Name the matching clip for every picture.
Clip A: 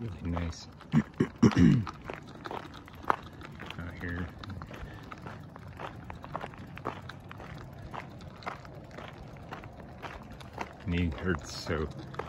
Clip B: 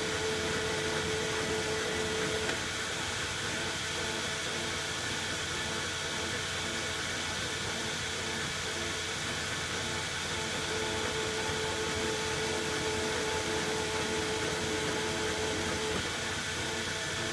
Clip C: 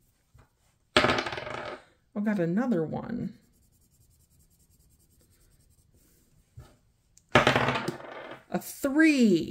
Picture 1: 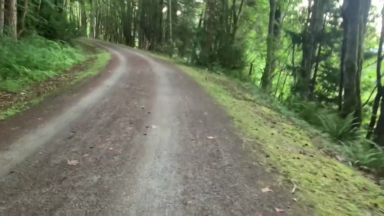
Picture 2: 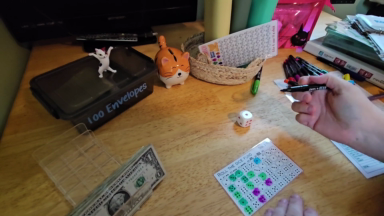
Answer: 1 A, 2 C